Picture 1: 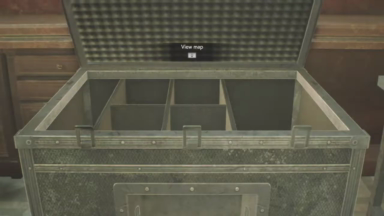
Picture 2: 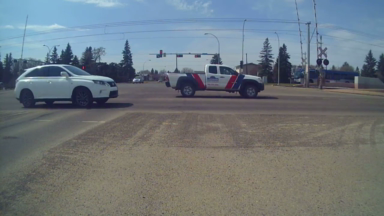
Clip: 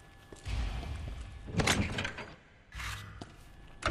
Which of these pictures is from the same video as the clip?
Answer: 1